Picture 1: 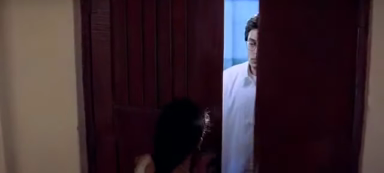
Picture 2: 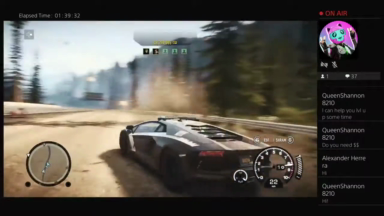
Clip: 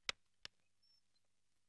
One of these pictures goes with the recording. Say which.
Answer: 1